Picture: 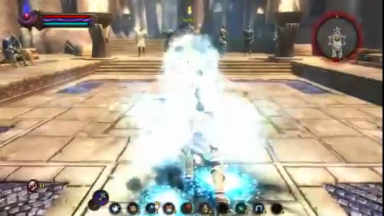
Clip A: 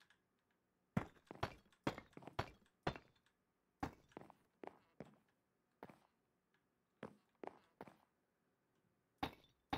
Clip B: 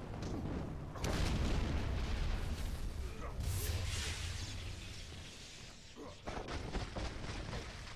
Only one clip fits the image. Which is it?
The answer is B